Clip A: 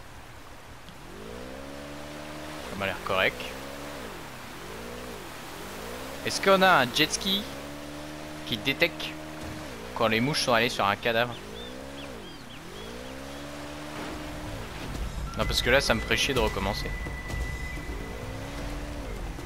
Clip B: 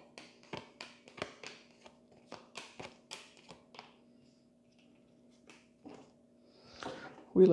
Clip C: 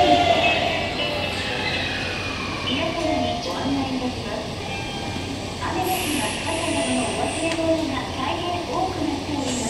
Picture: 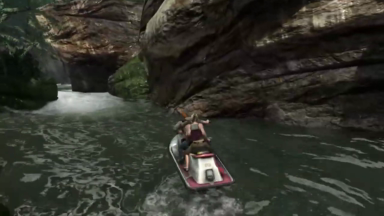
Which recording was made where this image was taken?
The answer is A